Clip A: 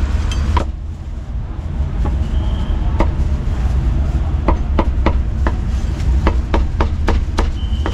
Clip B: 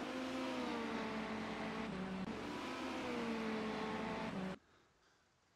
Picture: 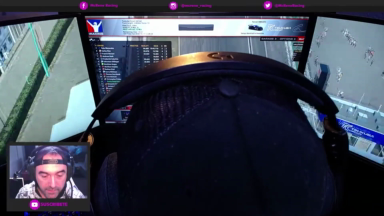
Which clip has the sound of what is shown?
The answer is B